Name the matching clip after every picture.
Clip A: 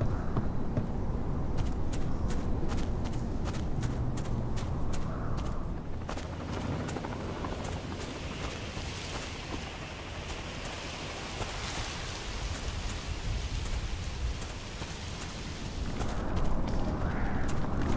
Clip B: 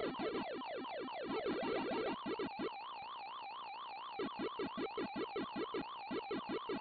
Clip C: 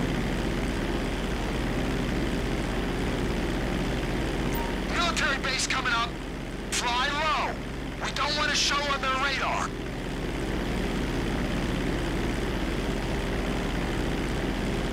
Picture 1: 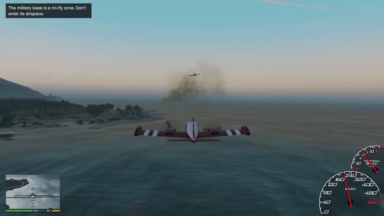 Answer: C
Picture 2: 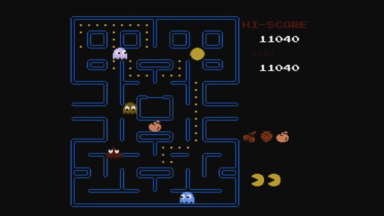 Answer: B